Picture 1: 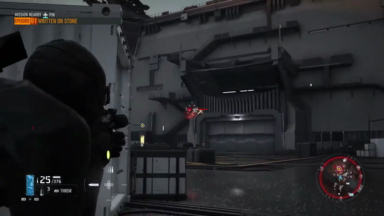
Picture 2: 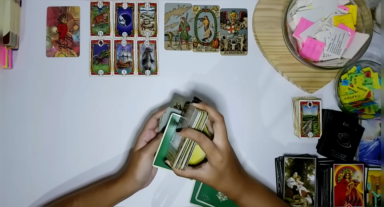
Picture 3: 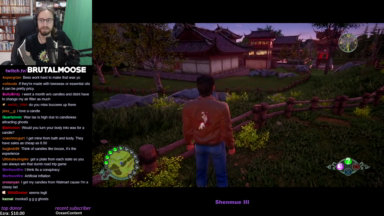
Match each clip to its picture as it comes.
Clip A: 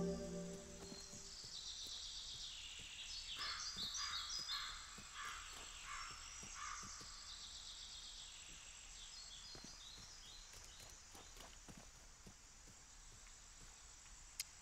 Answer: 3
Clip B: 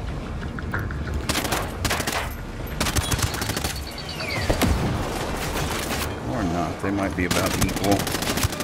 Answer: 1